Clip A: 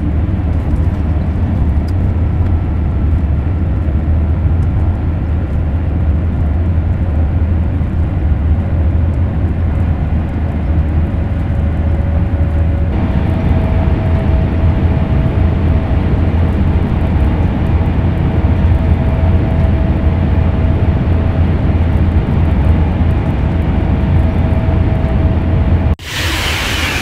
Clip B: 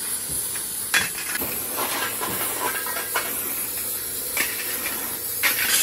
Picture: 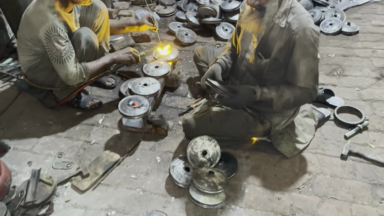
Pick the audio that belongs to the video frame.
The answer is B